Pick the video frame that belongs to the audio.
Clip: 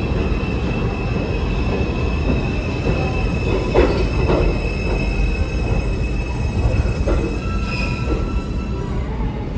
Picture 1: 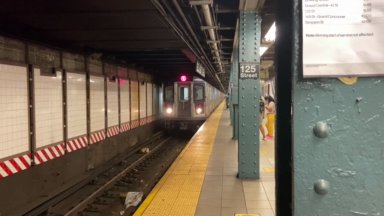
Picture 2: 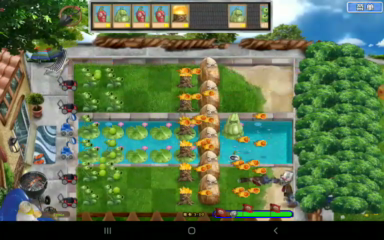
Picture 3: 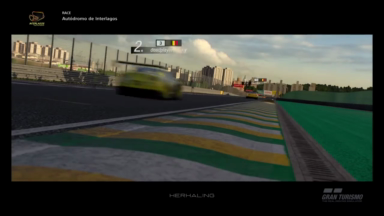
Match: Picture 1